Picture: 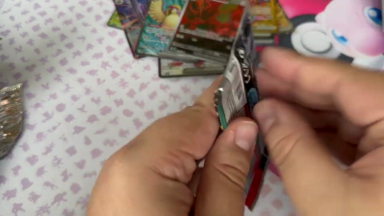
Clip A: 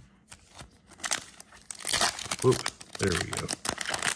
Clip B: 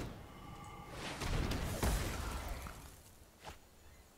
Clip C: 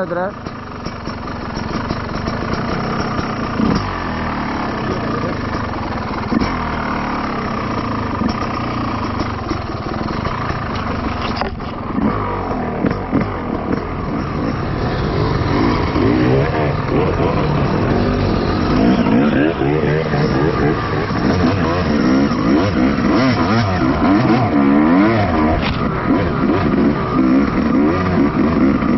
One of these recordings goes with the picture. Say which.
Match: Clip A